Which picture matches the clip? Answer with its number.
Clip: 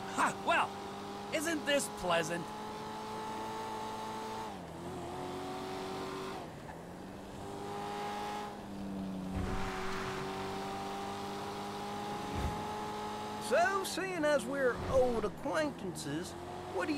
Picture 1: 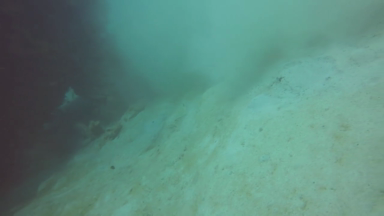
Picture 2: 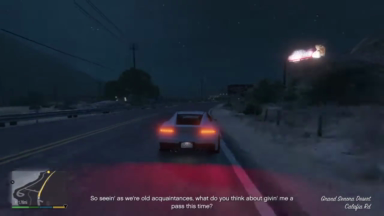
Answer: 2